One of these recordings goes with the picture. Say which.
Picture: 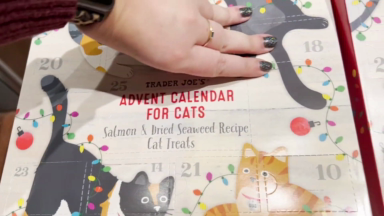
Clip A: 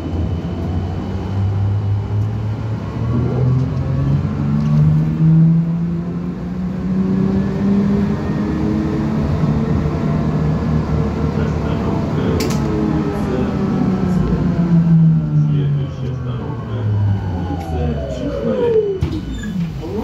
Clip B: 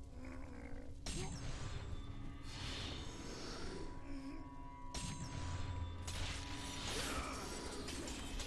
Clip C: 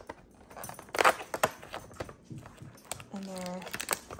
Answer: C